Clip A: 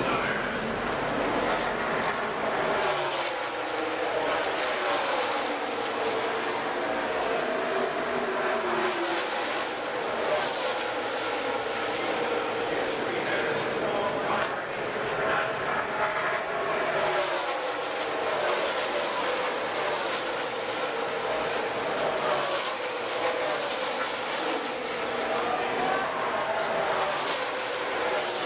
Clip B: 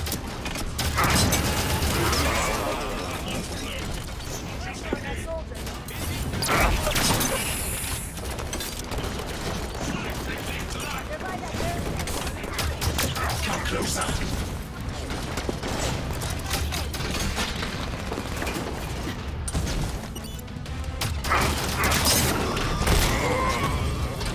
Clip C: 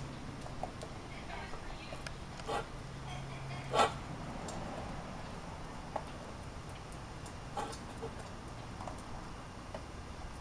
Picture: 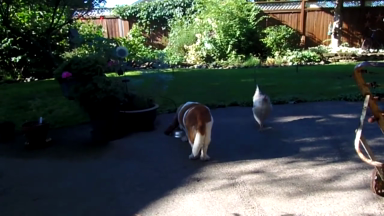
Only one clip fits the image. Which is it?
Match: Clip C